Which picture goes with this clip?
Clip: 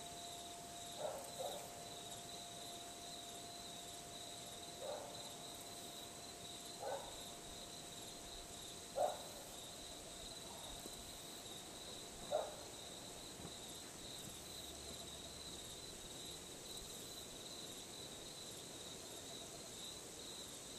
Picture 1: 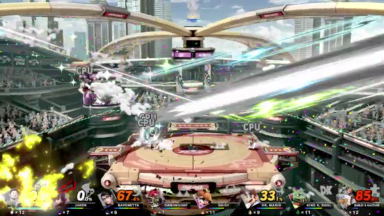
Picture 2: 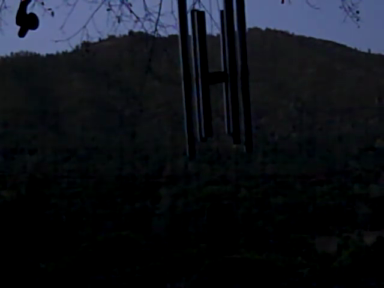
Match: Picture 2